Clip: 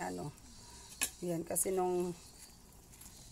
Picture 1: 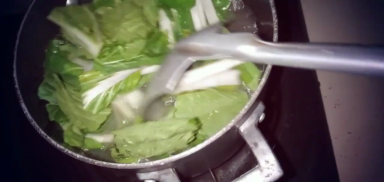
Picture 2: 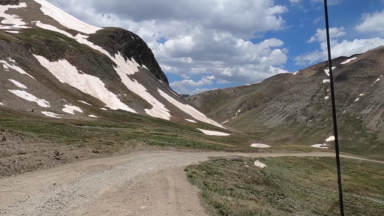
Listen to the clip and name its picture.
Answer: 1